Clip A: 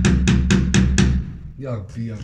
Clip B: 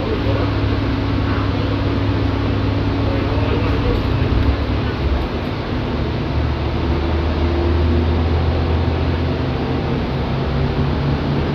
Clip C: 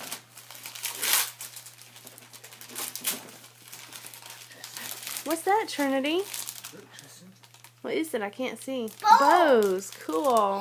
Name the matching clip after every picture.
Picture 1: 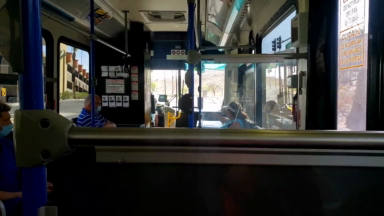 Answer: B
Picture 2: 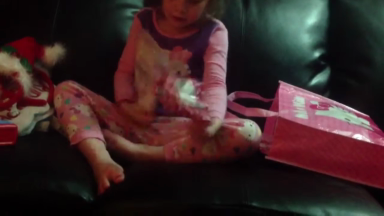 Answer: C